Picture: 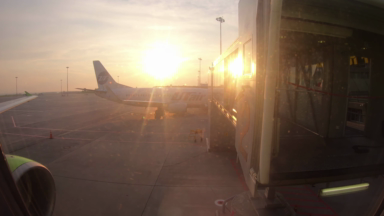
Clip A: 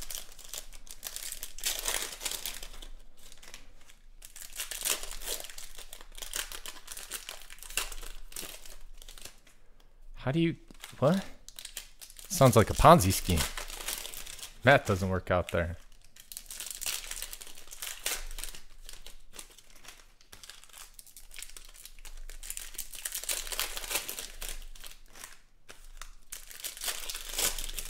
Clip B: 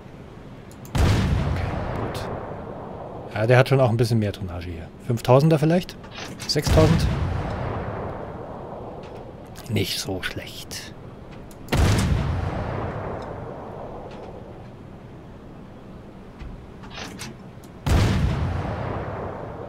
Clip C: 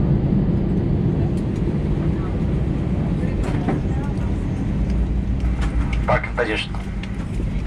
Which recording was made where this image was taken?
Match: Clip C